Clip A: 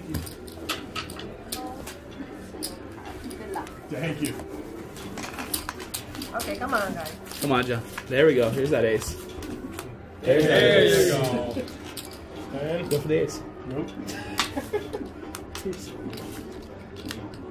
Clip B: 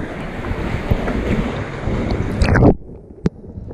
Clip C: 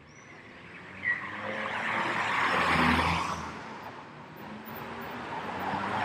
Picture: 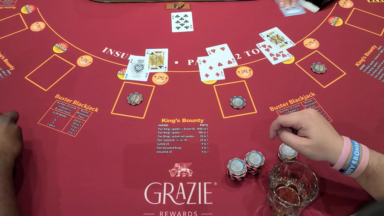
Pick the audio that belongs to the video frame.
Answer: A